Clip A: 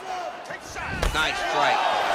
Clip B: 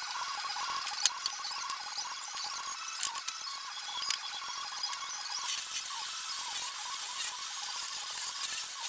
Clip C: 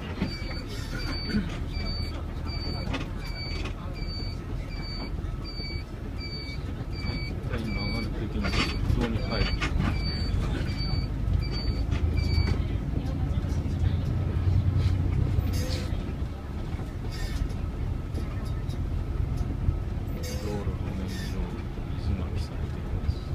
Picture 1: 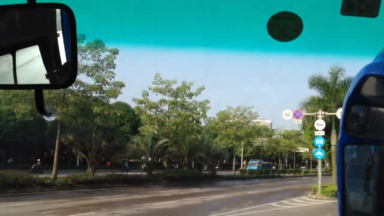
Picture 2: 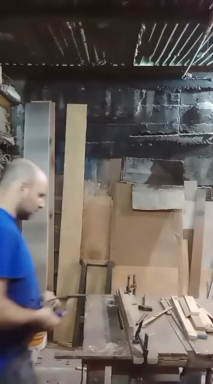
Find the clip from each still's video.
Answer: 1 C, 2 B